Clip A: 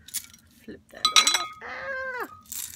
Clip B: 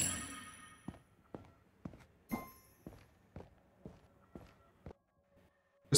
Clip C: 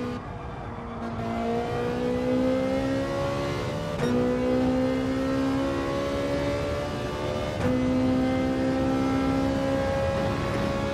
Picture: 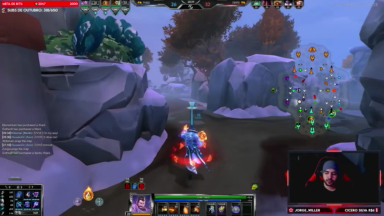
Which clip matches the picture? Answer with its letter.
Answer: B